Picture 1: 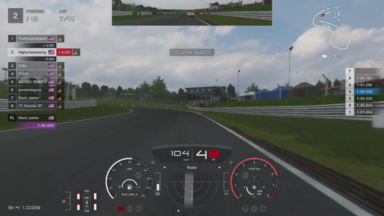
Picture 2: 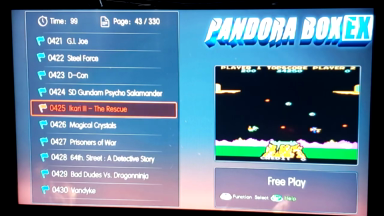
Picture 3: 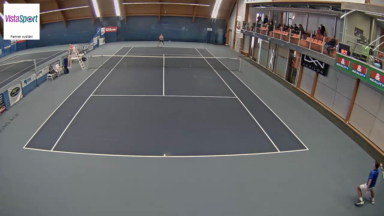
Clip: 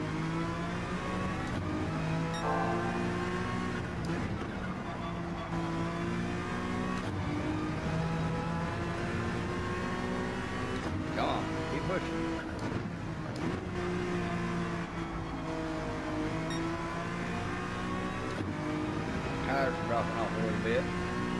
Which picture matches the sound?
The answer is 1